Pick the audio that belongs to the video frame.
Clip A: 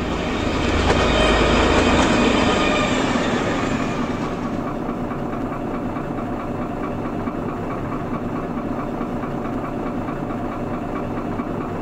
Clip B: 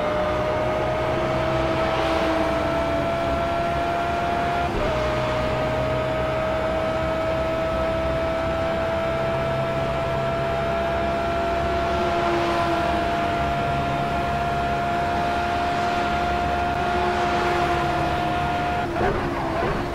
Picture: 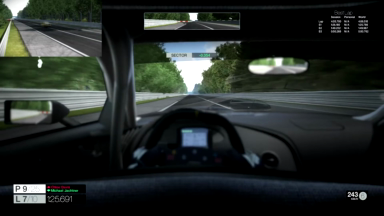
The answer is B